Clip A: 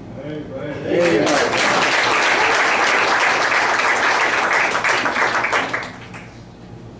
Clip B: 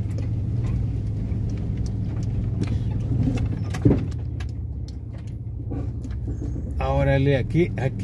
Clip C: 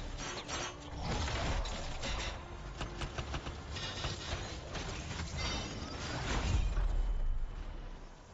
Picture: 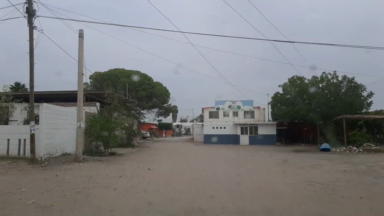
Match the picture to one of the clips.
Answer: B